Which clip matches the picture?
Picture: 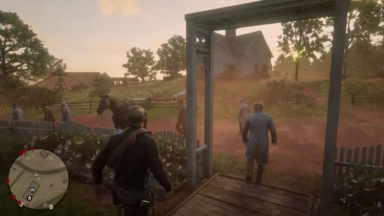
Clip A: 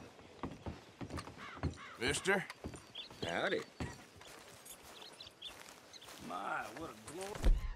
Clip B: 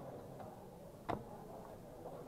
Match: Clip A